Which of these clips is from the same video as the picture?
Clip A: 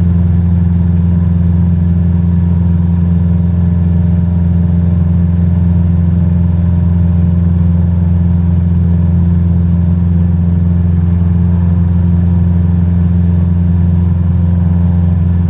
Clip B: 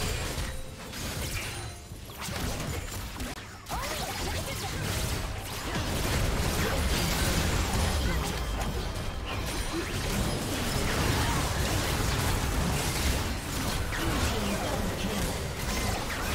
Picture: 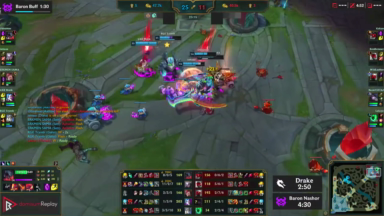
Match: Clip B